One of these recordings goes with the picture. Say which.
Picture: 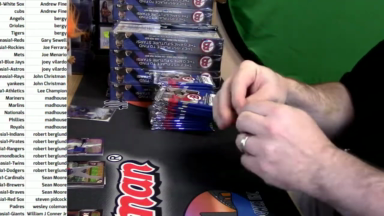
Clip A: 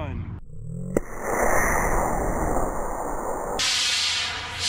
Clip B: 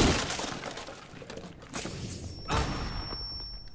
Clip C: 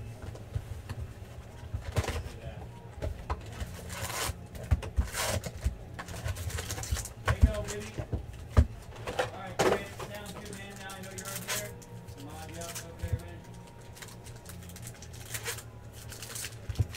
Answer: C